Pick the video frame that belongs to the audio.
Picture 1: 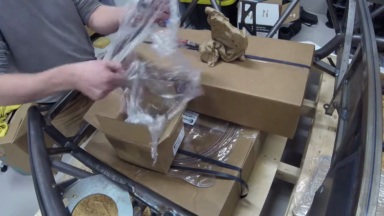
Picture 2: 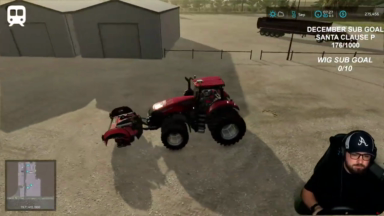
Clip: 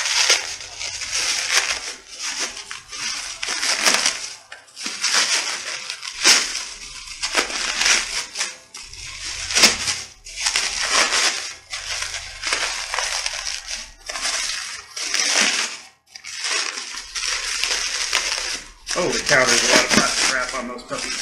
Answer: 1